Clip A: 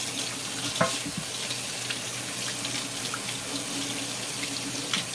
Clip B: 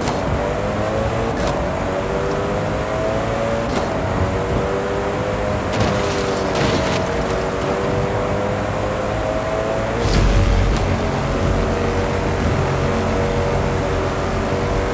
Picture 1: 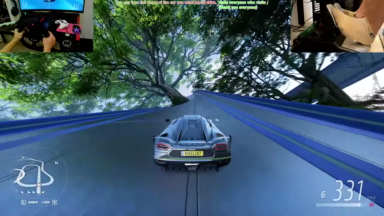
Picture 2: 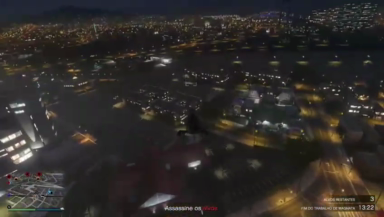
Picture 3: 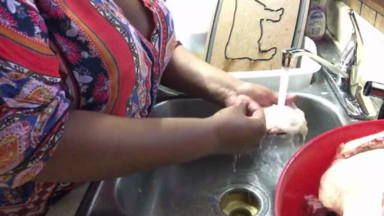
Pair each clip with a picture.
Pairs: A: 3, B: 1